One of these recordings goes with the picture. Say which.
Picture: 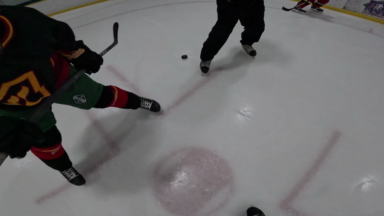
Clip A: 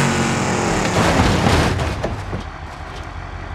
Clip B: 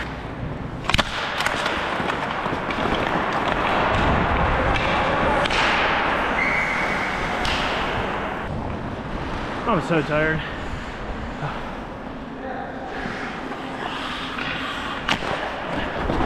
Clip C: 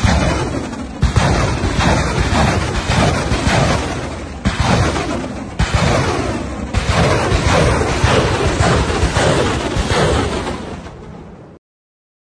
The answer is B